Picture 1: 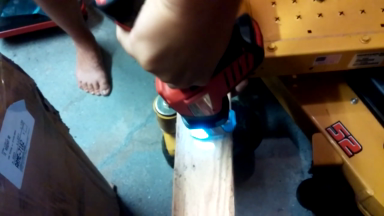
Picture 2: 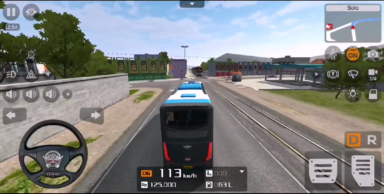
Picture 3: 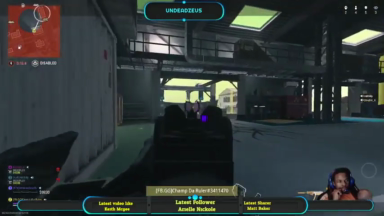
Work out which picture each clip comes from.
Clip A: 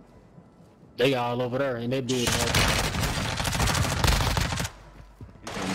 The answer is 3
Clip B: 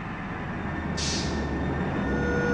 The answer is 2